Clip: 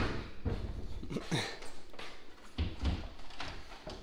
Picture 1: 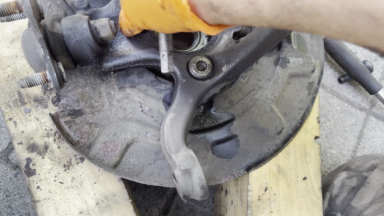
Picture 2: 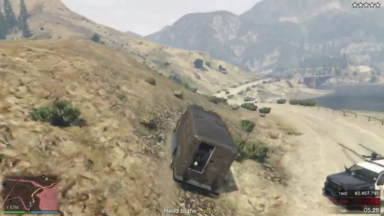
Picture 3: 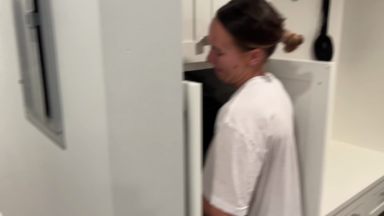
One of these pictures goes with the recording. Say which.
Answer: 3